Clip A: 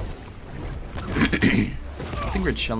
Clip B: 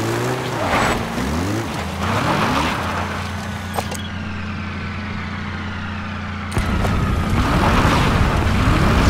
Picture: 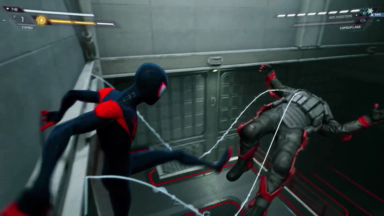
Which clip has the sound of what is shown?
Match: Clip A